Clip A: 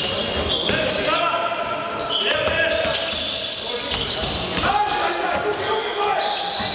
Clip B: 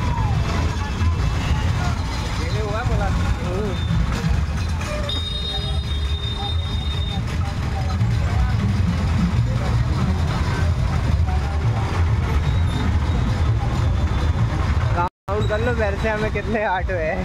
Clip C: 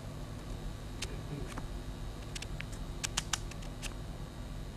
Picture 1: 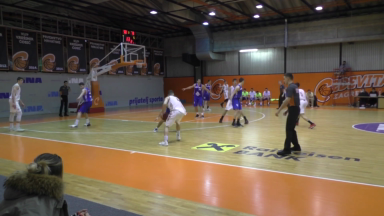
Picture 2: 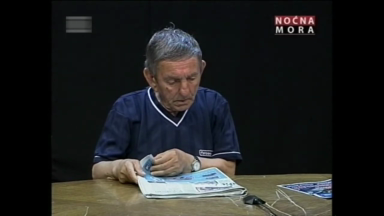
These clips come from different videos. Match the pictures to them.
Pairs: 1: A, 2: C